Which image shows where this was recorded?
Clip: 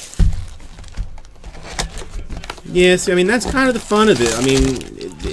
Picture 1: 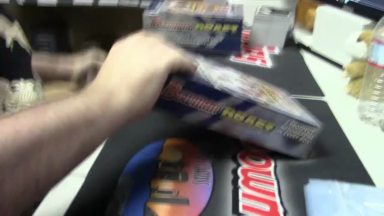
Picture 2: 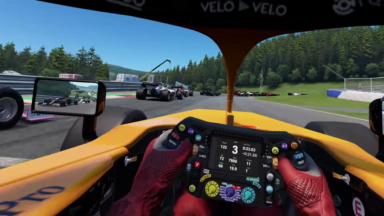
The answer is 1